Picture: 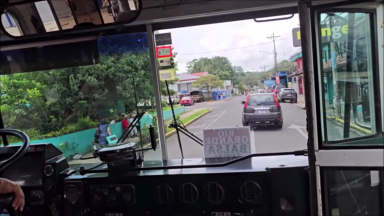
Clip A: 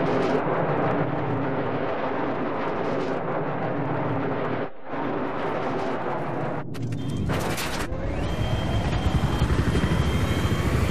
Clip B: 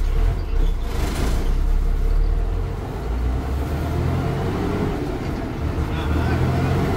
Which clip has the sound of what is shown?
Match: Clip B